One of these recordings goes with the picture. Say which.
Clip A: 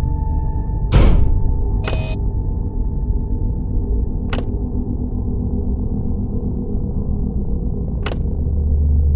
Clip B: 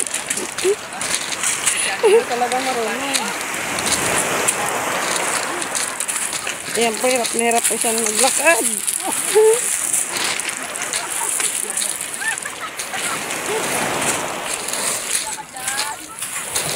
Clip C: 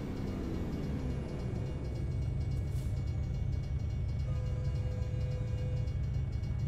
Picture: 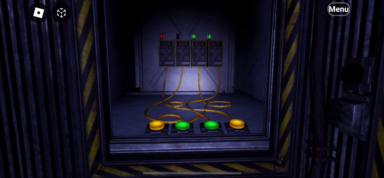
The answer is A